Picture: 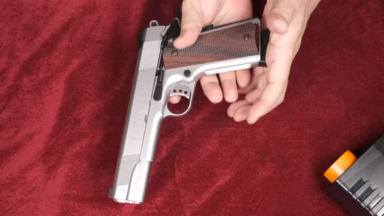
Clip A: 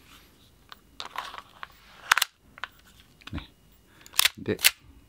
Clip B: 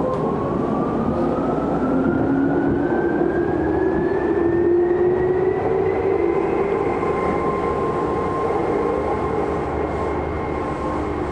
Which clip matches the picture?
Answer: A